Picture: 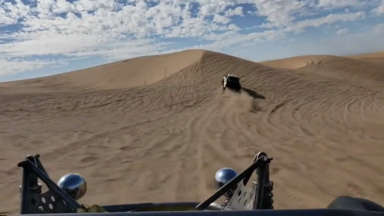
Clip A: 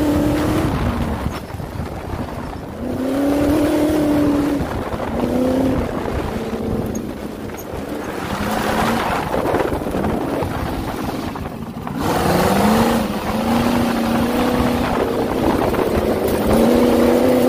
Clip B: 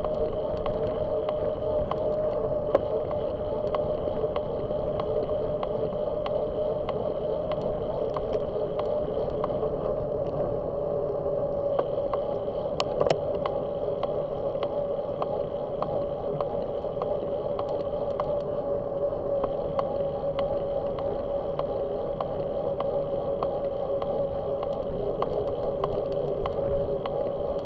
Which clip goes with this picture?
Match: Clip A